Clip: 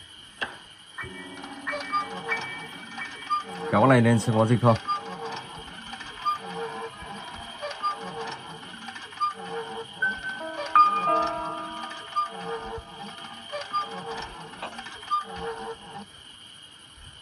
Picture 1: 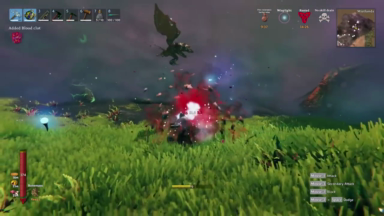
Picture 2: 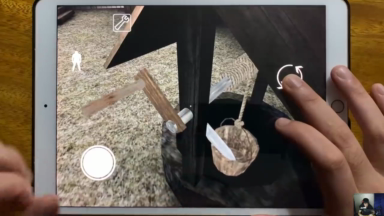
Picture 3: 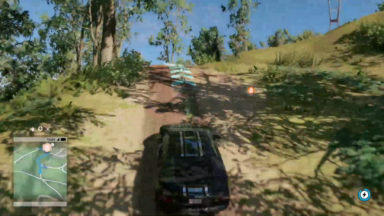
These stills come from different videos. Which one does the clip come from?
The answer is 2